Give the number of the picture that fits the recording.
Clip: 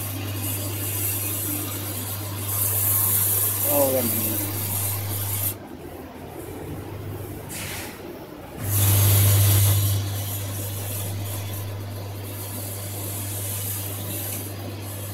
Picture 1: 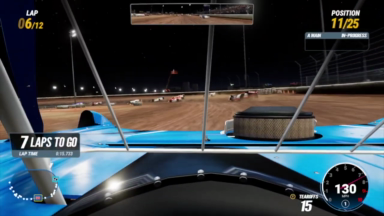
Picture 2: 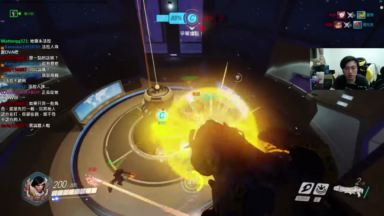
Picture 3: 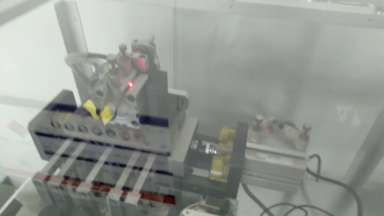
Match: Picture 3